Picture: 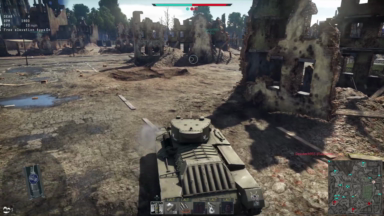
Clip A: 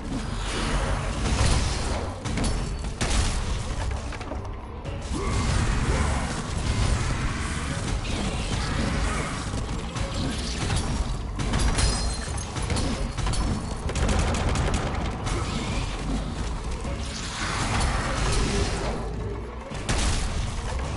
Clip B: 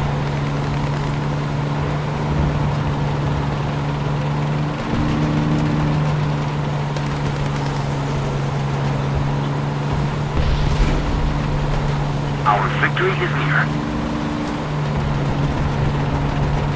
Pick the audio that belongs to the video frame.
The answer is B